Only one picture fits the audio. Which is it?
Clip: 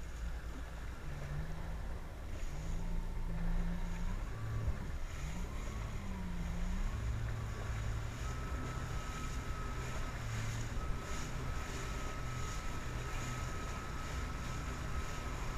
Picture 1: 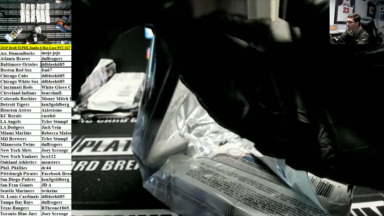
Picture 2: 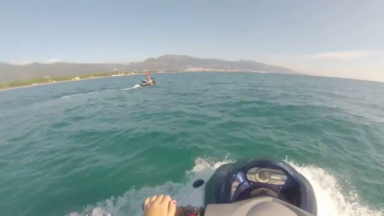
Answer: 2